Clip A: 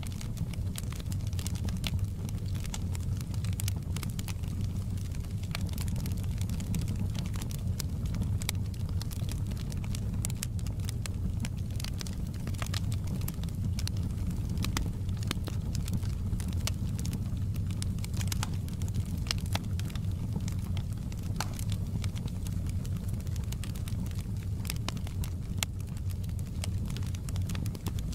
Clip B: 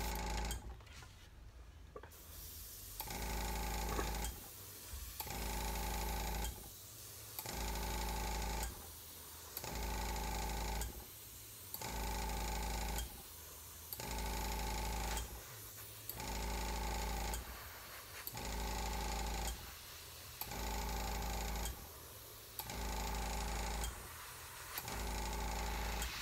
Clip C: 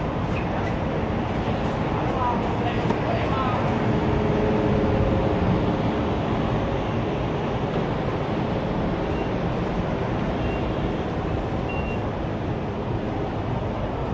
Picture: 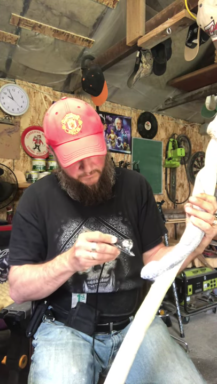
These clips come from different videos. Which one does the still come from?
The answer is B